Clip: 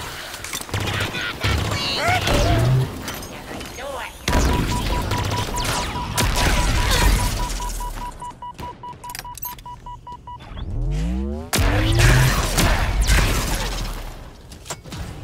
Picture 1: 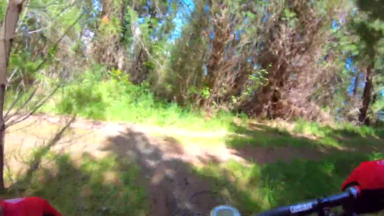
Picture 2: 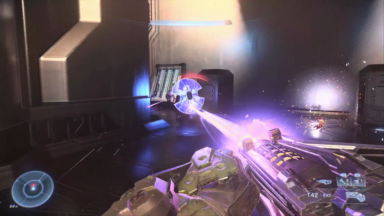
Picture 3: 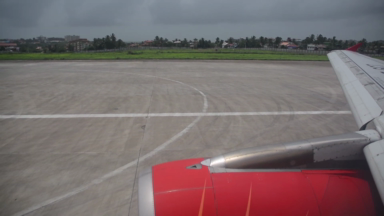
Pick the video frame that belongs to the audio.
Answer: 2